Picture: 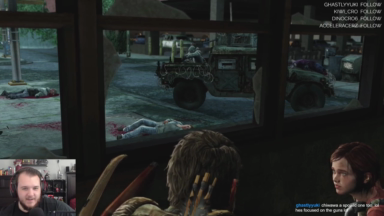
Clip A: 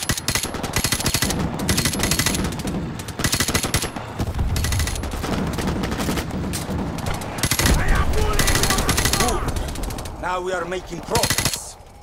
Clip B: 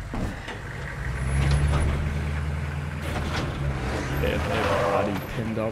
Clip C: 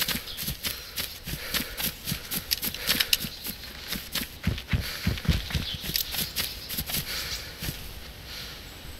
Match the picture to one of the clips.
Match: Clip B